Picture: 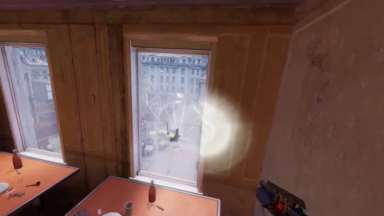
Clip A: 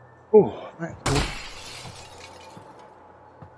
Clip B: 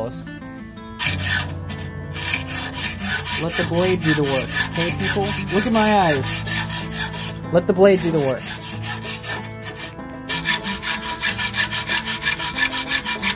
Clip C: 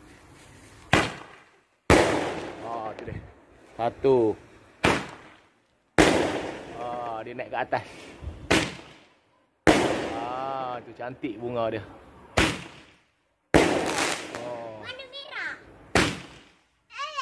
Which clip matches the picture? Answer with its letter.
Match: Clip A